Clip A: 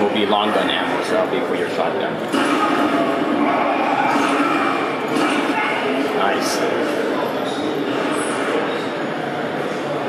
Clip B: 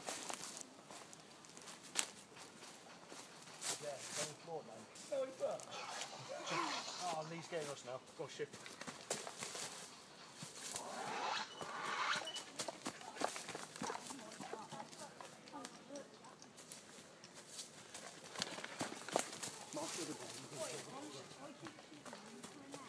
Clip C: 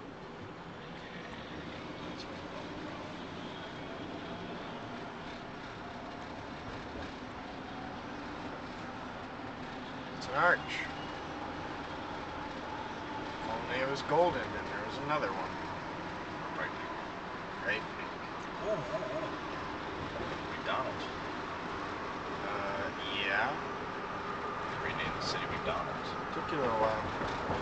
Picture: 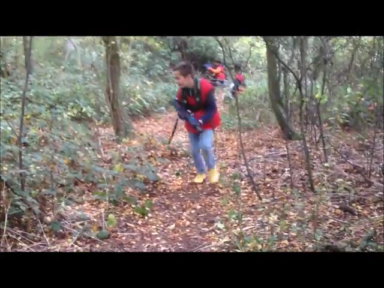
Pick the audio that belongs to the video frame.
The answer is B